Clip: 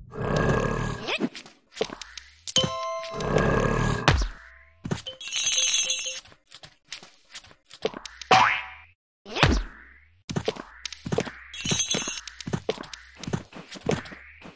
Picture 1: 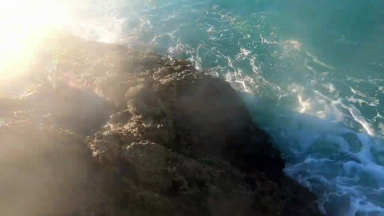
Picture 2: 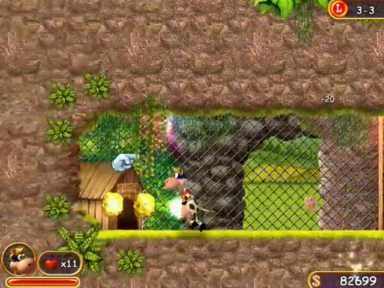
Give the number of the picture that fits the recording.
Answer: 2